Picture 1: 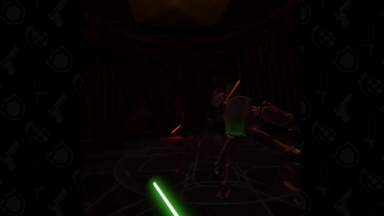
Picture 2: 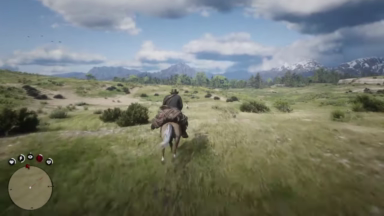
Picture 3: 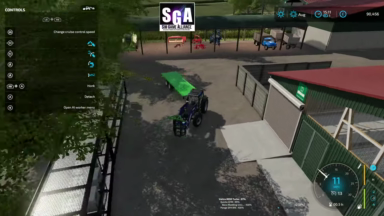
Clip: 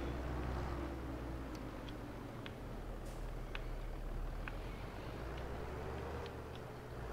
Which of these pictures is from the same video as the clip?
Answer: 3